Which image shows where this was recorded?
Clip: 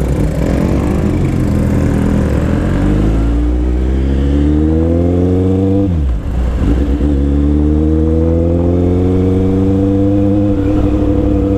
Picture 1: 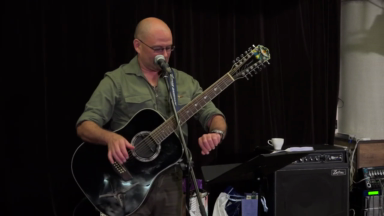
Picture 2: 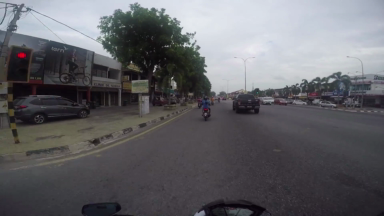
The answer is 2